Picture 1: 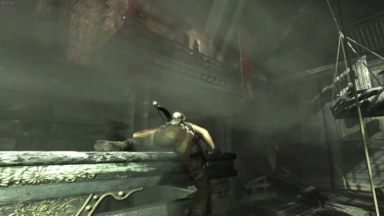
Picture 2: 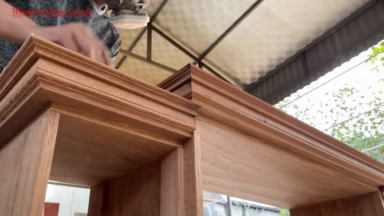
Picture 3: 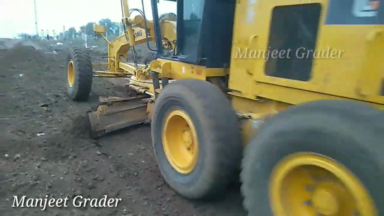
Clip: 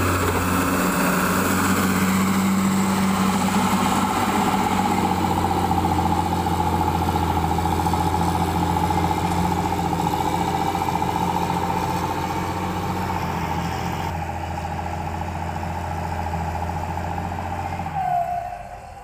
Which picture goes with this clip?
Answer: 3